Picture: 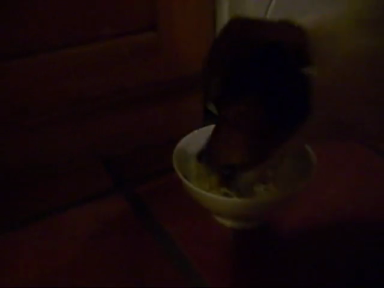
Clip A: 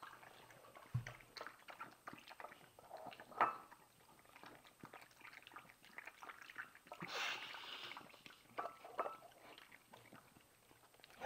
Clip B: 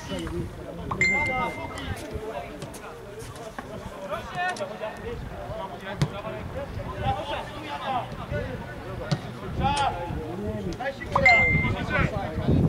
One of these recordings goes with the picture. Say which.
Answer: A